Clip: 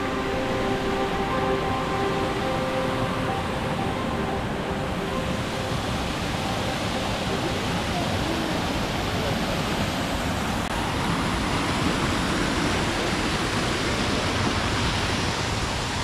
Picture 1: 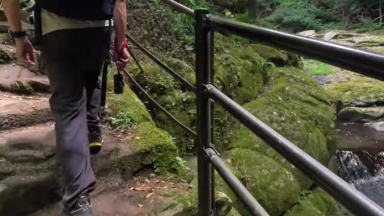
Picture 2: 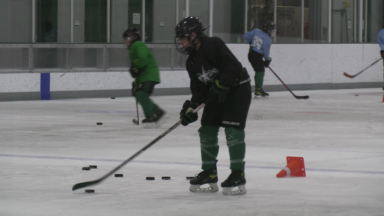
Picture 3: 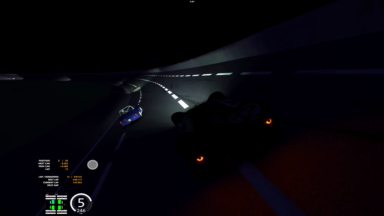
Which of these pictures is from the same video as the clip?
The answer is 1